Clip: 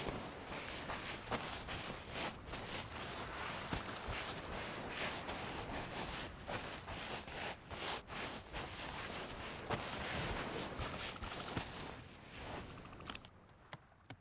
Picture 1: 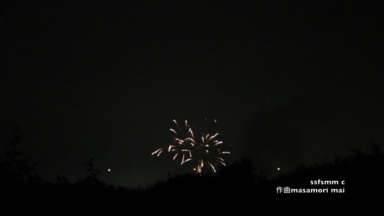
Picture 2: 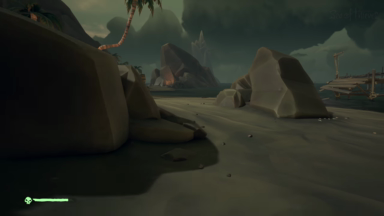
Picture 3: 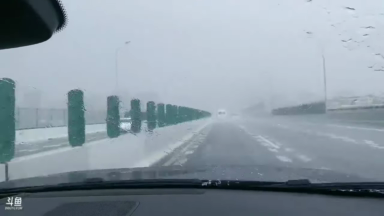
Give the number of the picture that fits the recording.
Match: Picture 2